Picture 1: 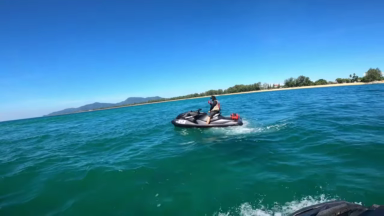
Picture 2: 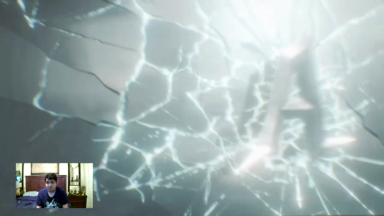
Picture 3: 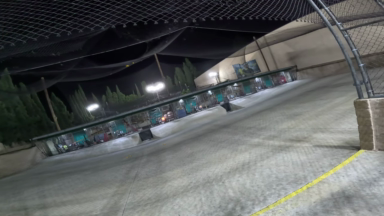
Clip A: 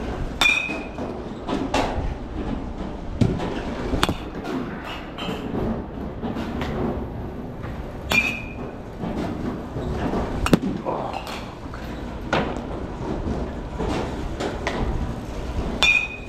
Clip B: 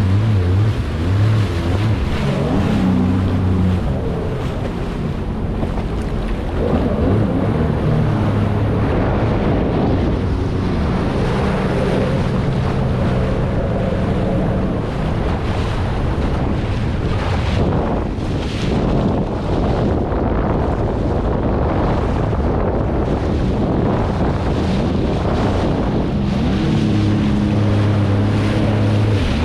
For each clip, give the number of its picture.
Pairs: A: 3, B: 1